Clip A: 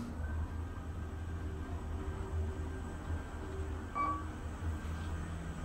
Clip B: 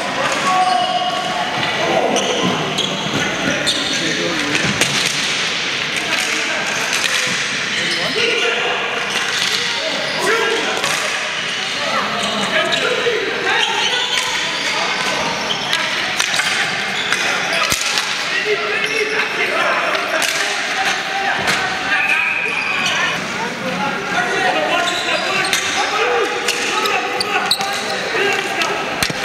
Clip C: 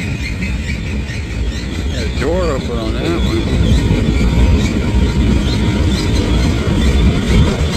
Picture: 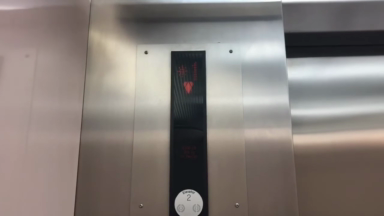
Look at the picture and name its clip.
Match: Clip A